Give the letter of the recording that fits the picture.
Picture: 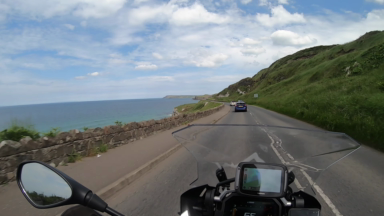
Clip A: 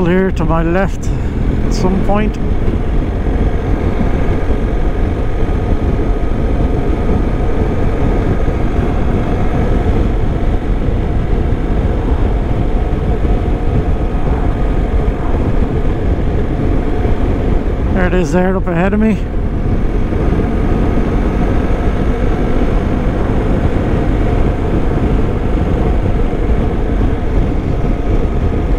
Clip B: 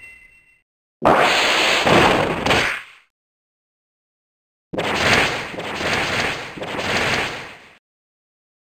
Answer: A